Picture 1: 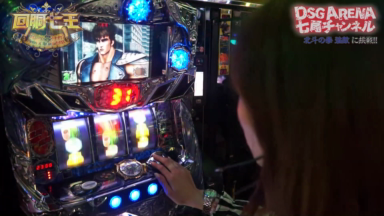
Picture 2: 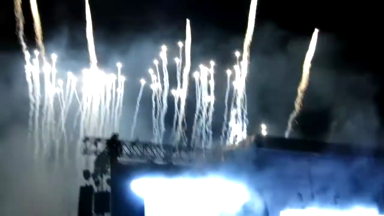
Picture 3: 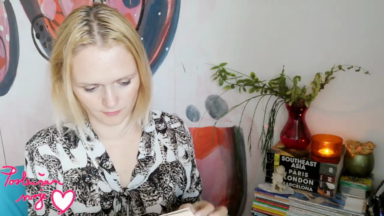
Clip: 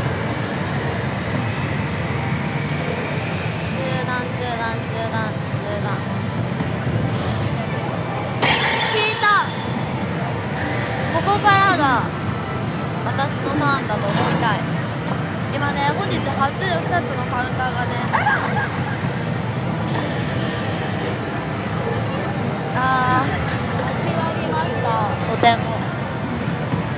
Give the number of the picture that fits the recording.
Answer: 1